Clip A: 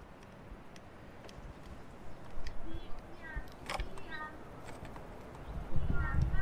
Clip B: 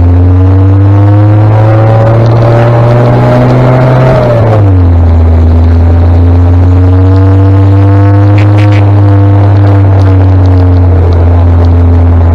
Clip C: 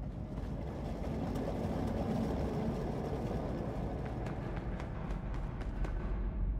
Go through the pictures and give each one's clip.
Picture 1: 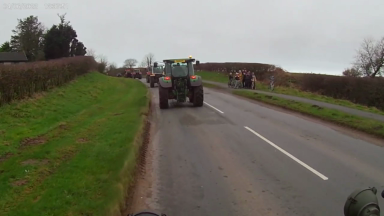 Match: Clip B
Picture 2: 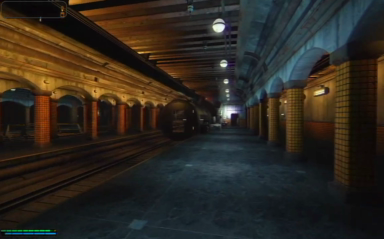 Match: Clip C